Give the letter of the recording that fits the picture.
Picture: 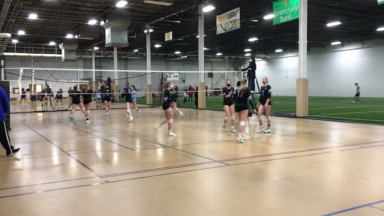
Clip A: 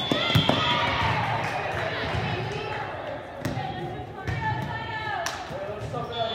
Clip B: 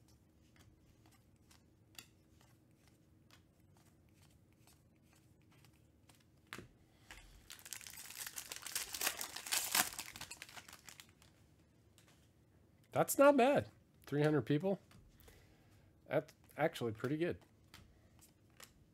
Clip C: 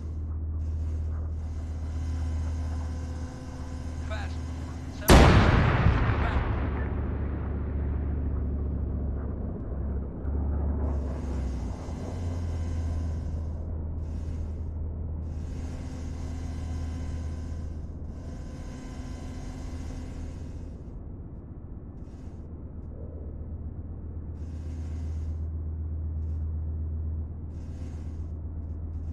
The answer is A